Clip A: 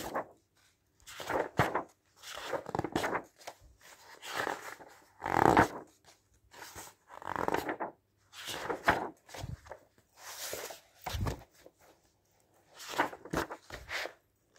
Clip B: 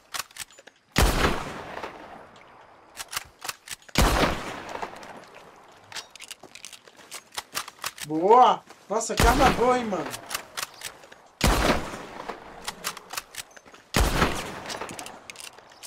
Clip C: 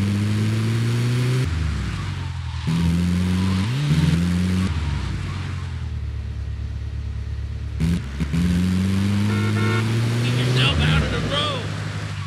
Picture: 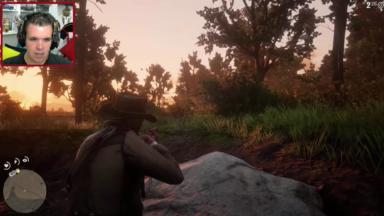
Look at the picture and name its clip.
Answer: B